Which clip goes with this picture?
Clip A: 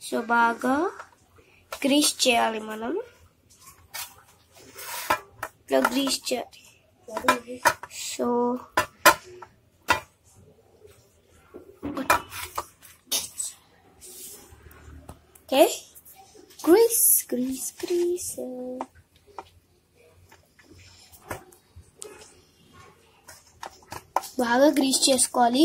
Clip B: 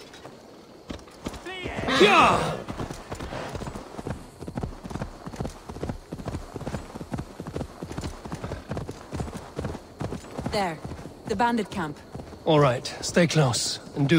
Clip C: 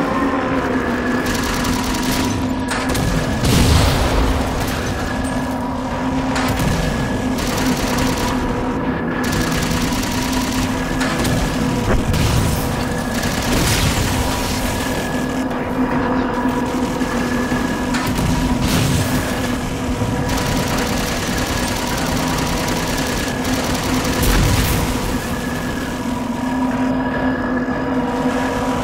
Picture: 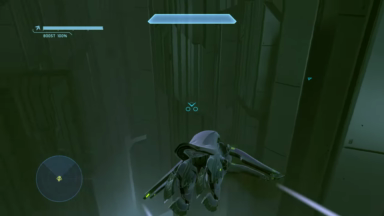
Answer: C